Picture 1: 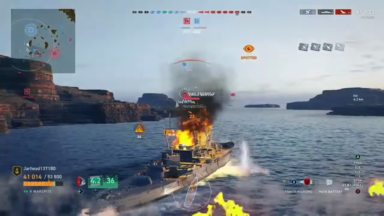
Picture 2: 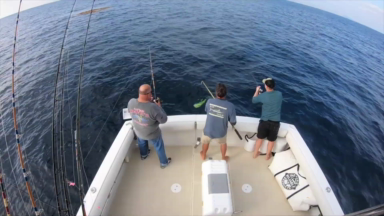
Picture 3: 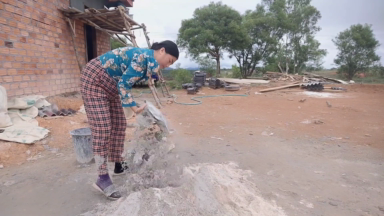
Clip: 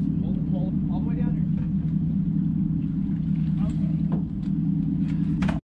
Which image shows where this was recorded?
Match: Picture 2